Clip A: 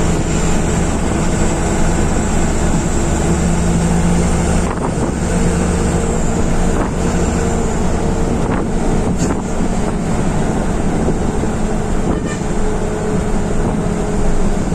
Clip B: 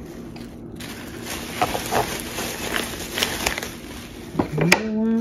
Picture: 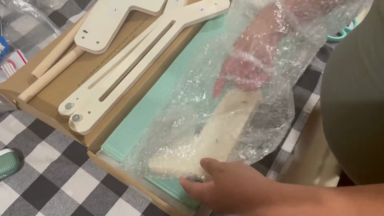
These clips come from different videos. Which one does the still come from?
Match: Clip B